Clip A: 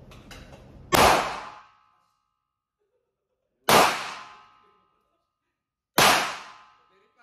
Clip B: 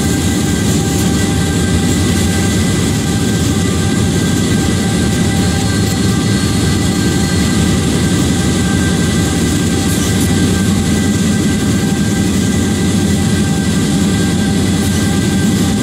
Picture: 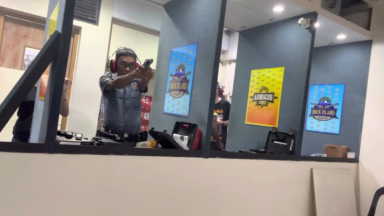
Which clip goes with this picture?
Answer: A